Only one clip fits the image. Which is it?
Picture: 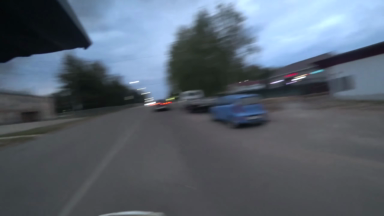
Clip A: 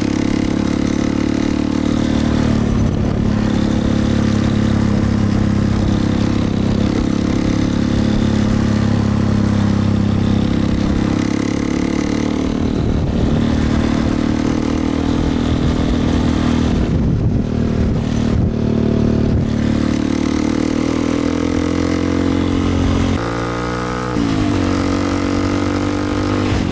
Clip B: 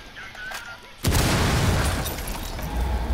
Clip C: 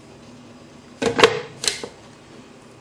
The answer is A